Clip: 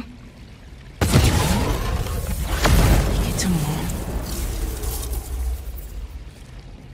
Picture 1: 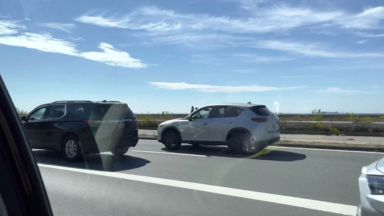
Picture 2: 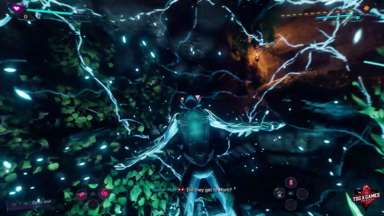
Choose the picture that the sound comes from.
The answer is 2